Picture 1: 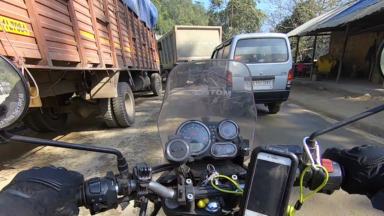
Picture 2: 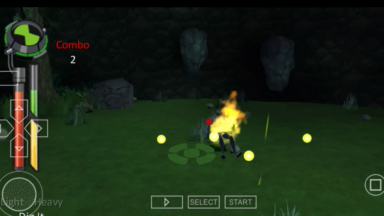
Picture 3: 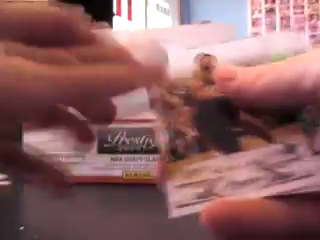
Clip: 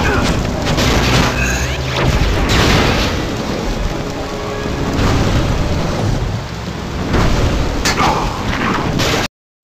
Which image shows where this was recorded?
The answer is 2